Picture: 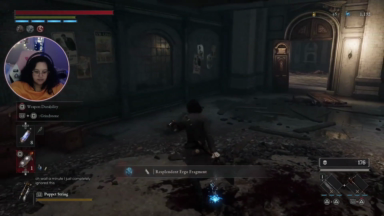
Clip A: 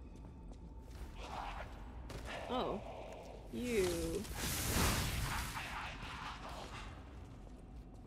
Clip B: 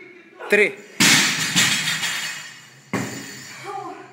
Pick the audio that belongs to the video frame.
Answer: A